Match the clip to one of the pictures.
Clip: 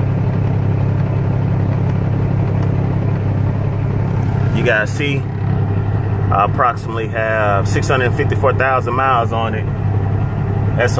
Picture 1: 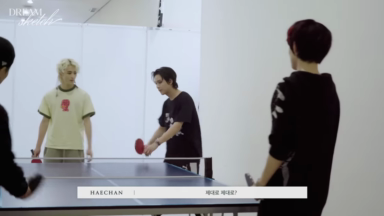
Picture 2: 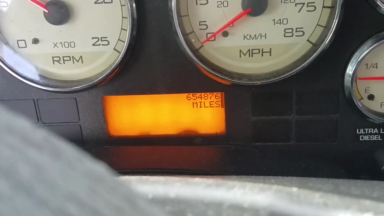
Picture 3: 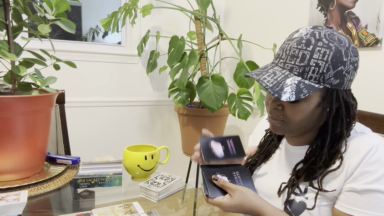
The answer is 2